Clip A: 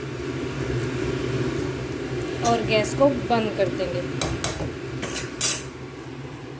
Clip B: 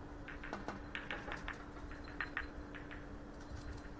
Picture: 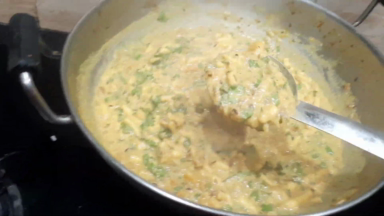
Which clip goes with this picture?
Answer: A